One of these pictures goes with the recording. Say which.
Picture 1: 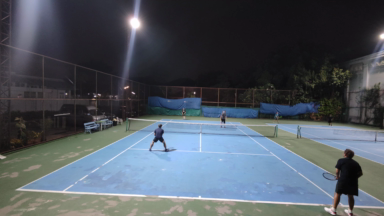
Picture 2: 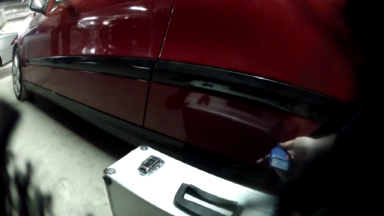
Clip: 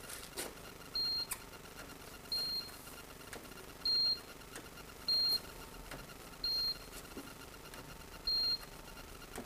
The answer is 2